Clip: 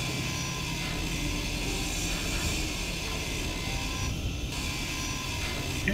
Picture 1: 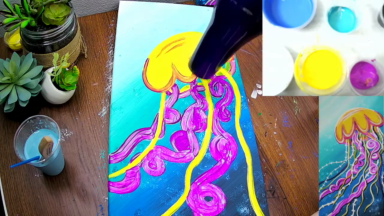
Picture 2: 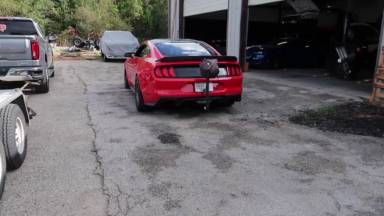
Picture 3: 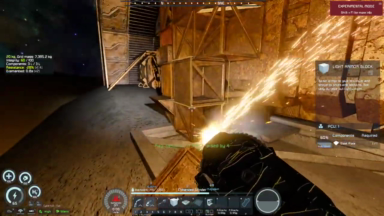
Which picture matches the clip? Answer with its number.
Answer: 3